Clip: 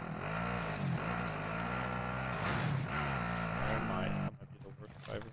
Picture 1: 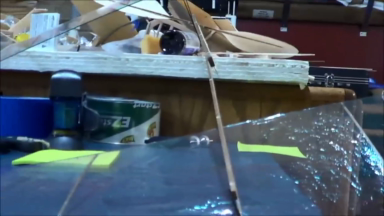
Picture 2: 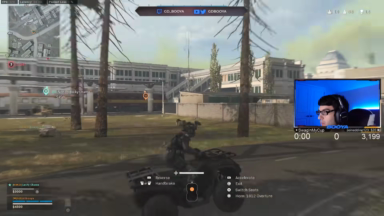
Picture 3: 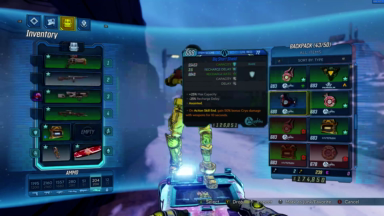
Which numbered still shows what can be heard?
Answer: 2